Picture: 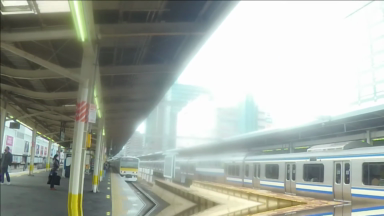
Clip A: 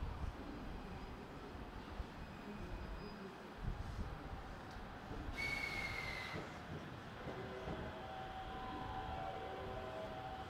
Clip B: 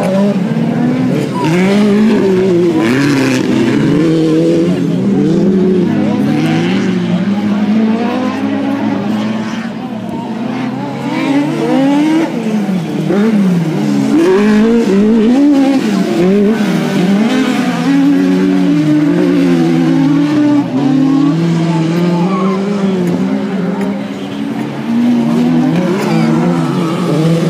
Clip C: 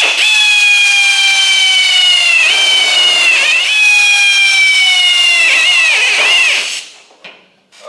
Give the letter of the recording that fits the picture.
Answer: A